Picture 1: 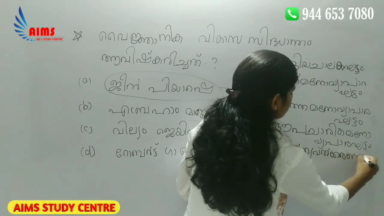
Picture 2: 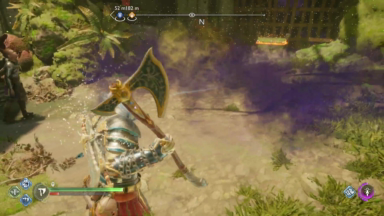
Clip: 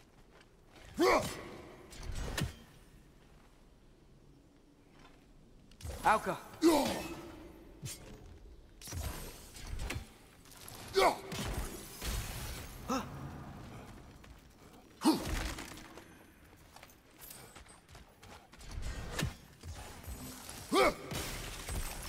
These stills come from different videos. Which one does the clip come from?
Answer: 2